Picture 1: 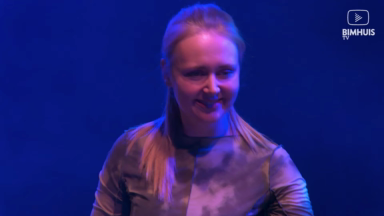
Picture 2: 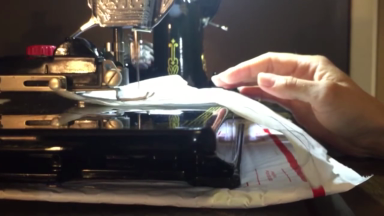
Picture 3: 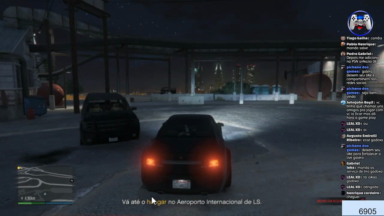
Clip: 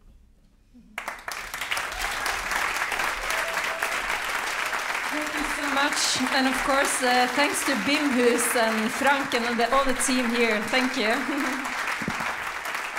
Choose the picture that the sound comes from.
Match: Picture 1